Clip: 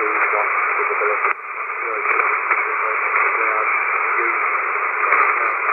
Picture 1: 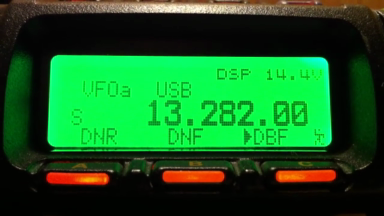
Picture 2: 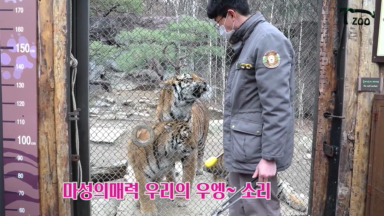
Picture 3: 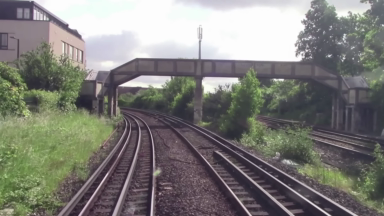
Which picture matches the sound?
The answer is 1